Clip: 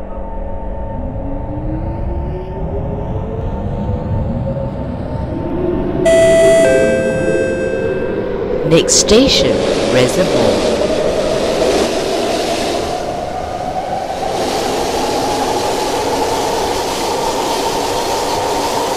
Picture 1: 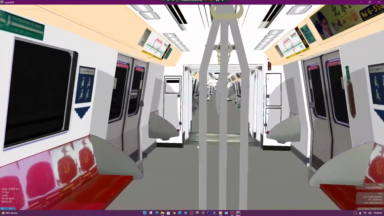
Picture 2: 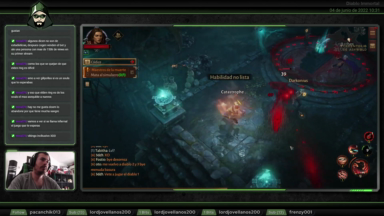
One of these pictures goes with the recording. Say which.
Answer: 1